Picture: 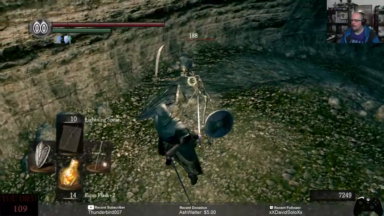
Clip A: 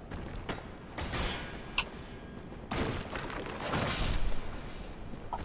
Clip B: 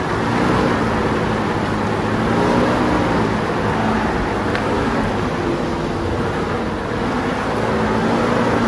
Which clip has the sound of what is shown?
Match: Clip A